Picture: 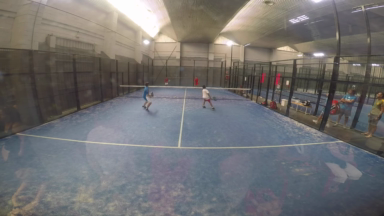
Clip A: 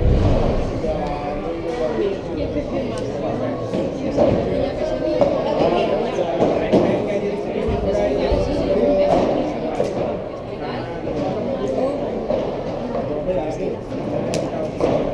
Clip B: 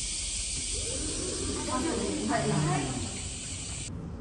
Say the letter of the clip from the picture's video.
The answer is A